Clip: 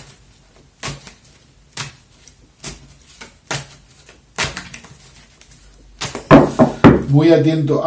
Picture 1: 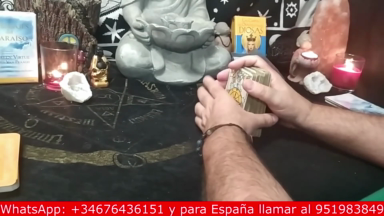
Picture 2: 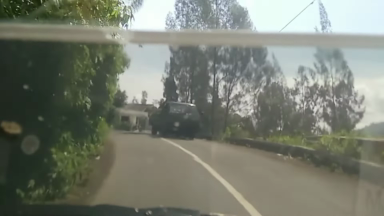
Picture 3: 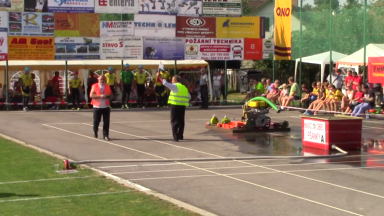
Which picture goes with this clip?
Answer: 1